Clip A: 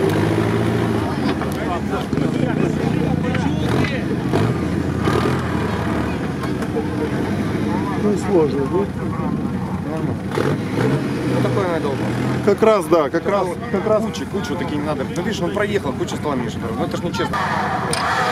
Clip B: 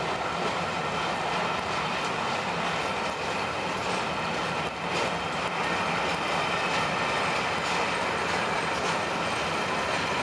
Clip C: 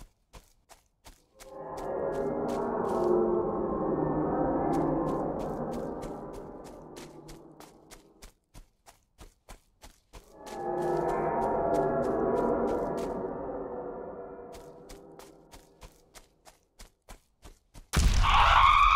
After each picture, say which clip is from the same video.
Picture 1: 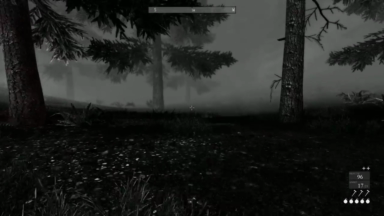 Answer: C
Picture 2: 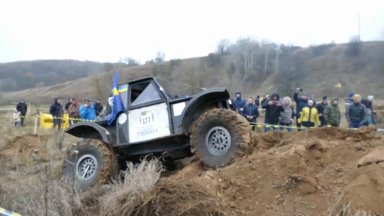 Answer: A